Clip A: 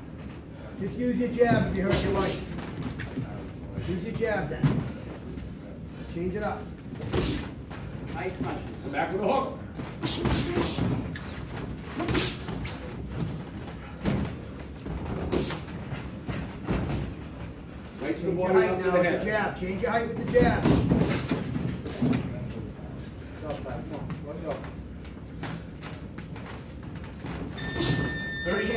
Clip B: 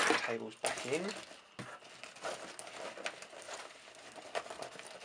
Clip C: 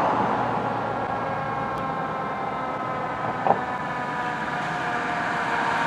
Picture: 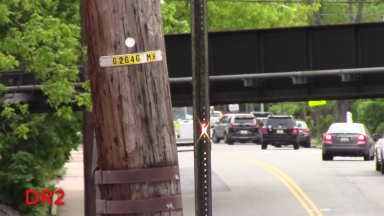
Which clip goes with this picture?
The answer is C